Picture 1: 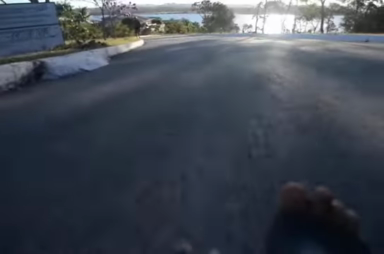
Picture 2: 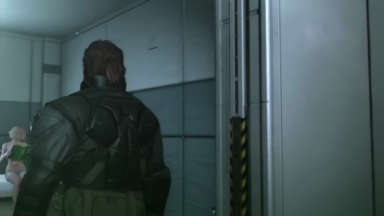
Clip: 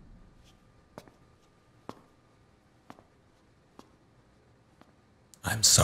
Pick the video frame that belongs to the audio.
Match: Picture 2